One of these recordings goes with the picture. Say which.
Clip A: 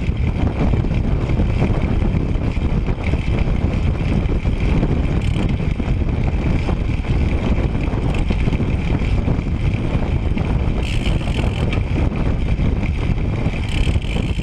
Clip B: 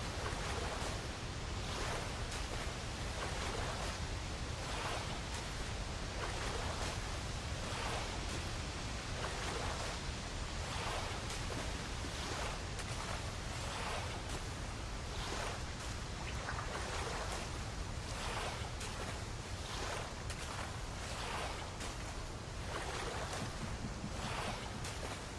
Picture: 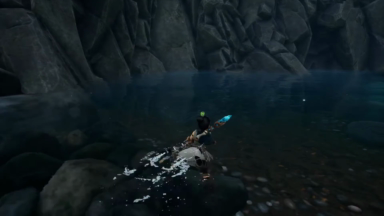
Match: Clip B